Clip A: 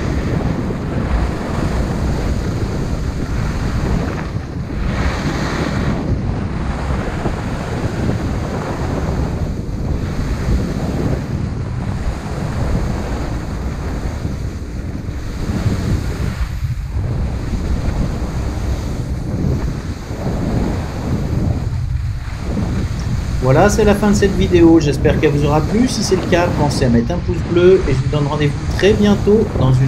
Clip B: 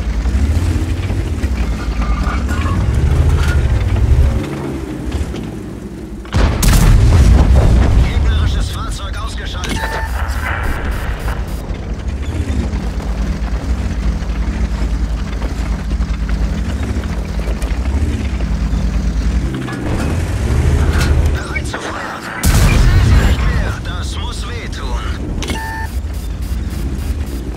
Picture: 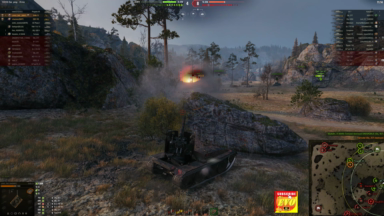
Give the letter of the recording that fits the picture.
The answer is B